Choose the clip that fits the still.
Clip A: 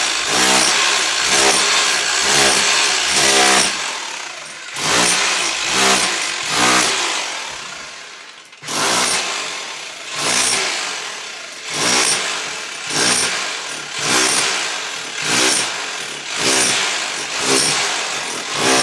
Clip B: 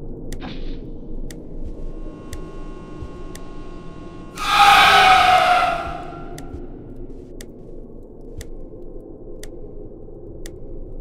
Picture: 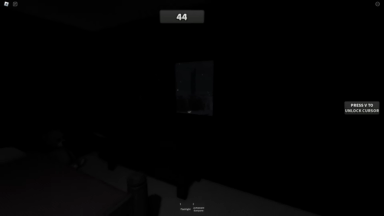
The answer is B